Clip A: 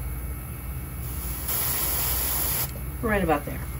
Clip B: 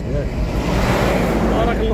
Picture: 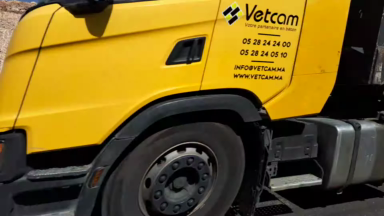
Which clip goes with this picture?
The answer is B